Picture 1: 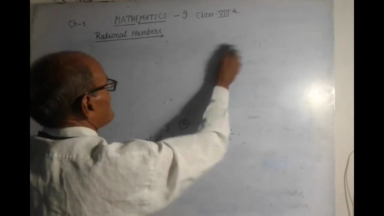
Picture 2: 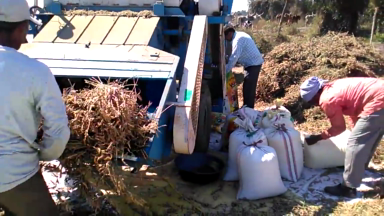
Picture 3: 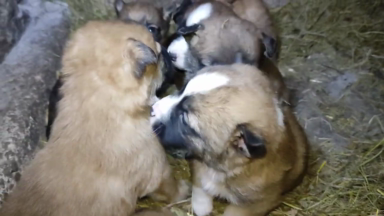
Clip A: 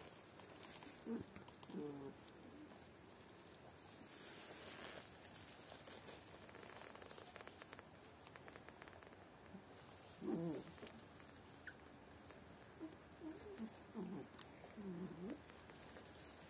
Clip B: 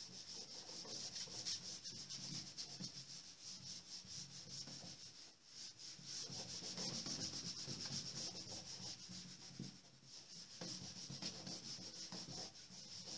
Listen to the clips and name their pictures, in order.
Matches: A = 3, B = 1